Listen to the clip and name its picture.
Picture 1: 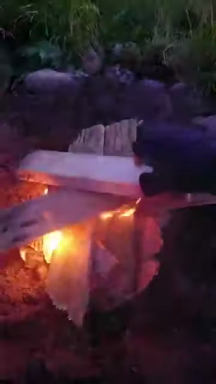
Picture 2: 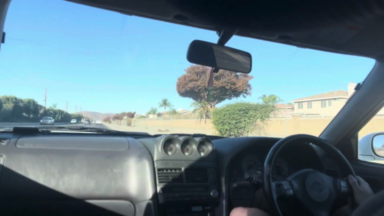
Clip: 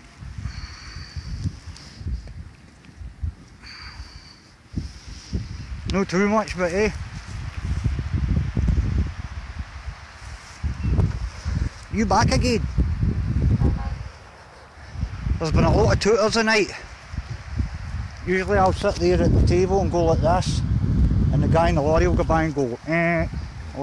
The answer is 1